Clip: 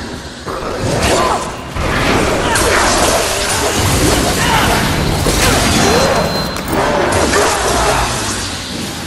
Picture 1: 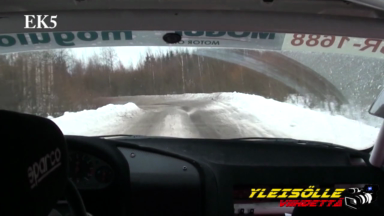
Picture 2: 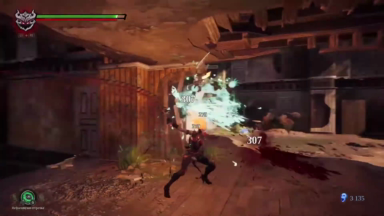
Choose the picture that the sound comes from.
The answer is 2